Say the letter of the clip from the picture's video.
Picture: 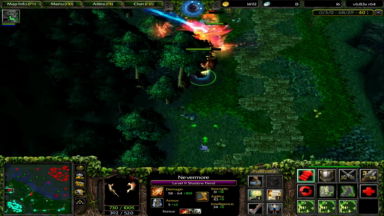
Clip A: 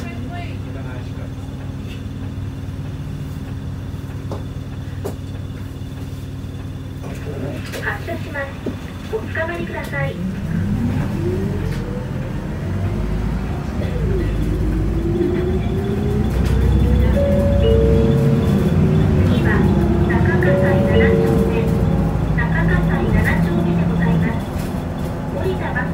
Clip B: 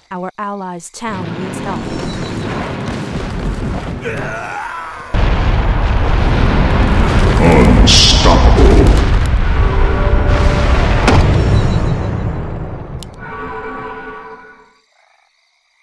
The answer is B